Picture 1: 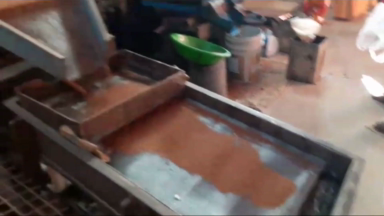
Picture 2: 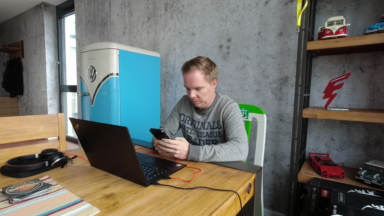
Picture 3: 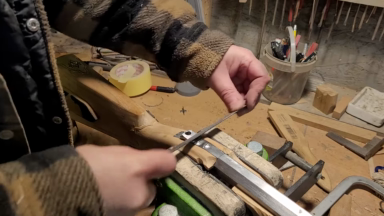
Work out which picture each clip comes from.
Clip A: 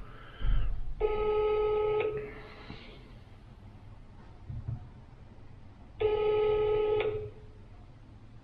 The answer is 2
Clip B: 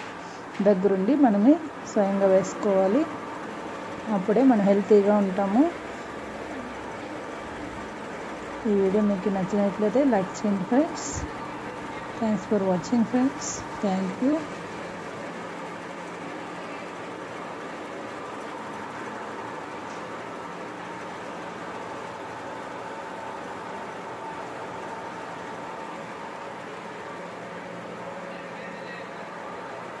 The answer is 1